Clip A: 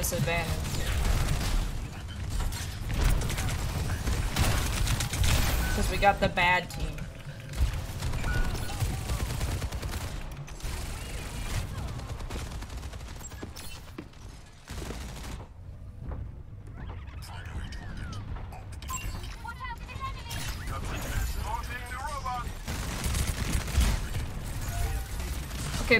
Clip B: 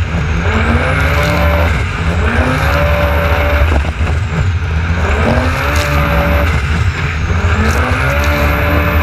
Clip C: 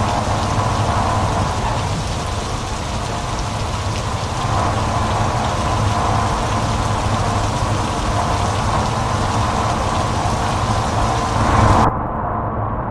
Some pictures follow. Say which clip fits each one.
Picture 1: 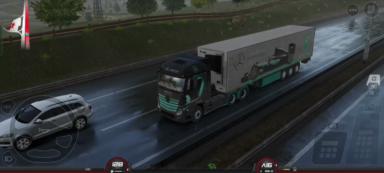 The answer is C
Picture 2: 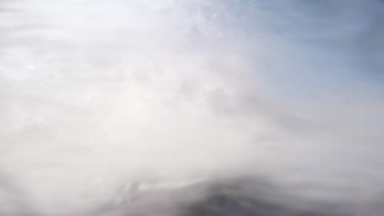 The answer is B